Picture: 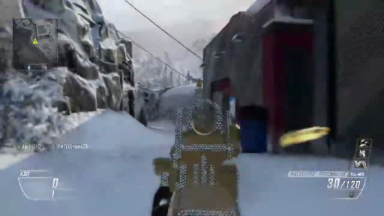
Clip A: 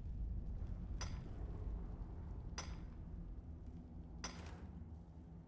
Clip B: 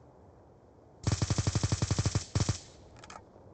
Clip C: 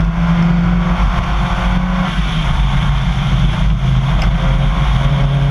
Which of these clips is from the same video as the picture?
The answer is B